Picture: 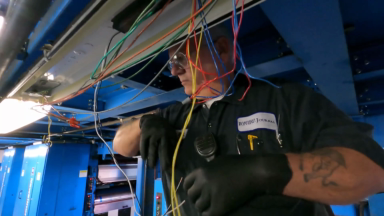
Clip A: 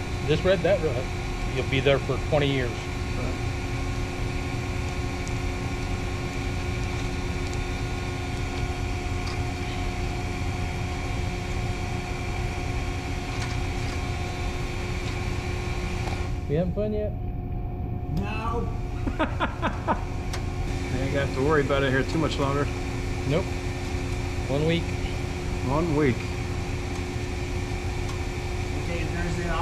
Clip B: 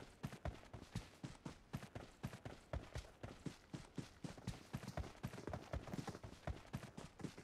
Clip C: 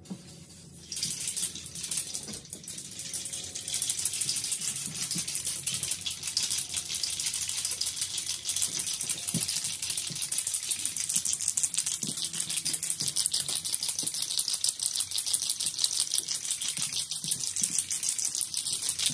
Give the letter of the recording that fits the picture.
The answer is A